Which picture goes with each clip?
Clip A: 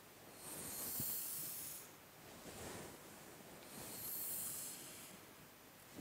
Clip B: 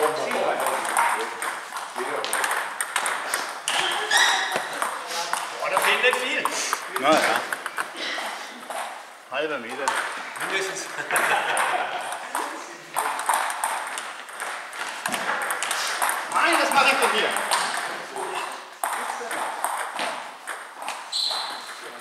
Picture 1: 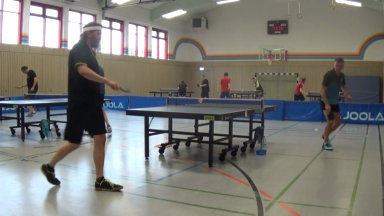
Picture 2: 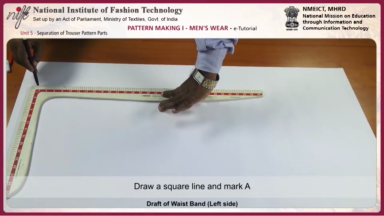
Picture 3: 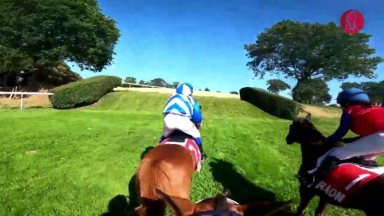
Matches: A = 2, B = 1